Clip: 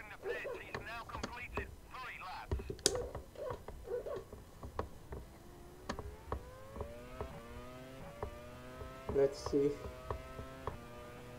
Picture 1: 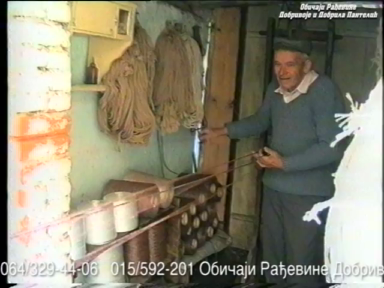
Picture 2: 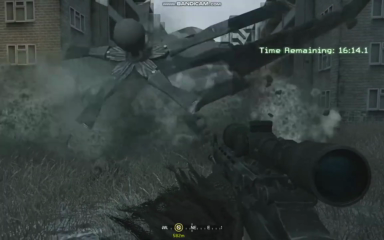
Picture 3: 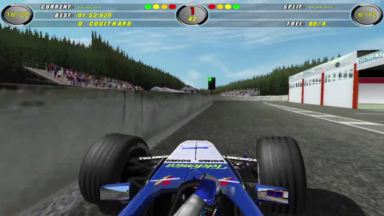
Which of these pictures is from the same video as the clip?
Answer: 3